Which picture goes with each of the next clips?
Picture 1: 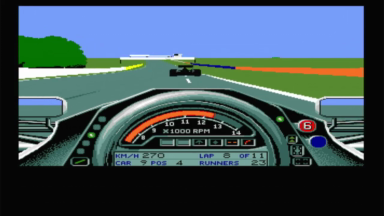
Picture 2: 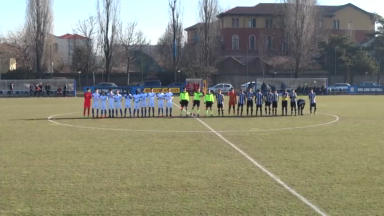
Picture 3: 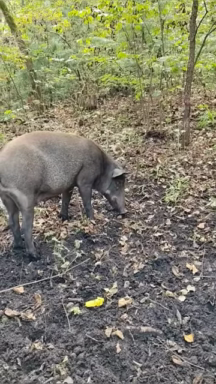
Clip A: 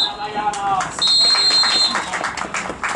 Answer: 2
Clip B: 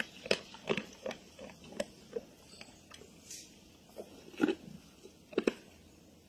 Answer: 3